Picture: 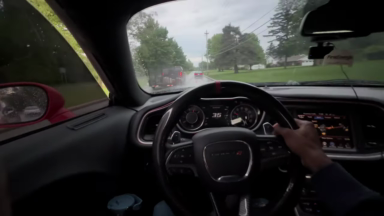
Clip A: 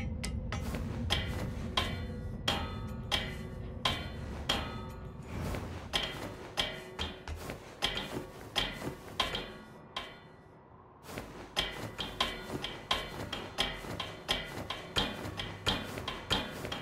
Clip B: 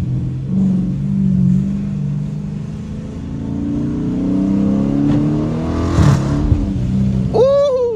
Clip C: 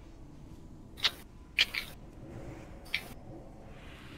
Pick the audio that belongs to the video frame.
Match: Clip B